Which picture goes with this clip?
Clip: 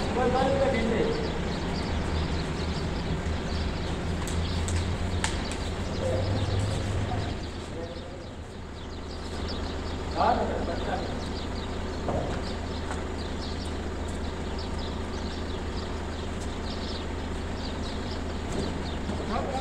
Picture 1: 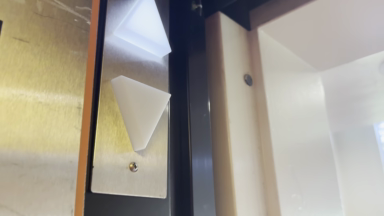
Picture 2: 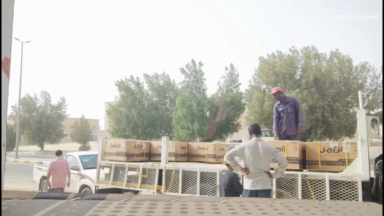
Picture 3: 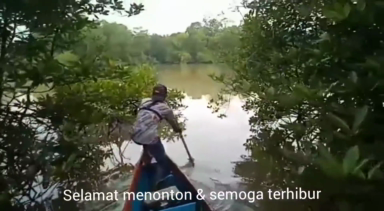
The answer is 2